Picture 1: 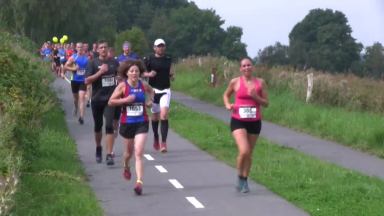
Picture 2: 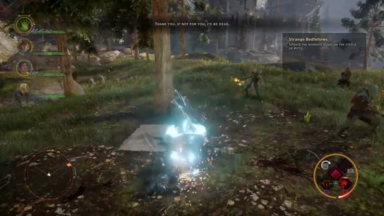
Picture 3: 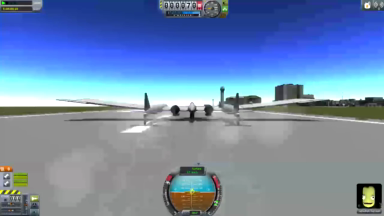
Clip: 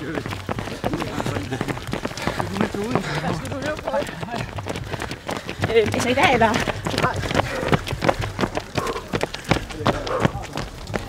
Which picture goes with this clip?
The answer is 1